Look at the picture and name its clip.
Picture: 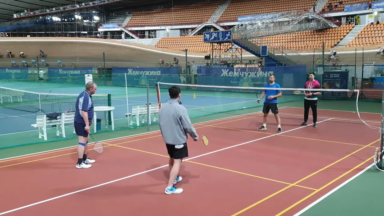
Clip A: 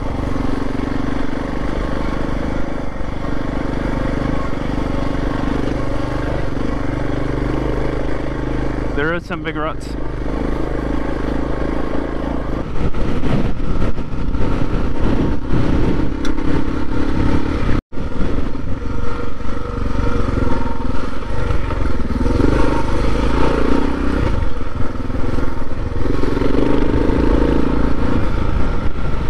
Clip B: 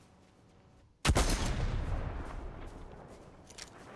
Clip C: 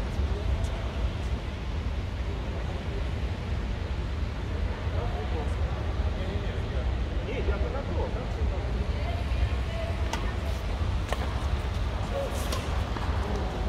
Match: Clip C